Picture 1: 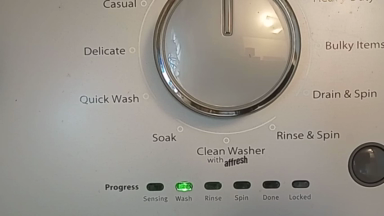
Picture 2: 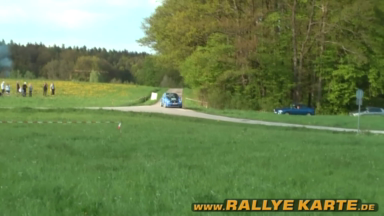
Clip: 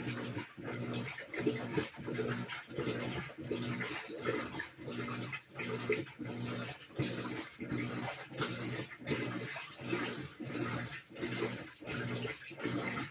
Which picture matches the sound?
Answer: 1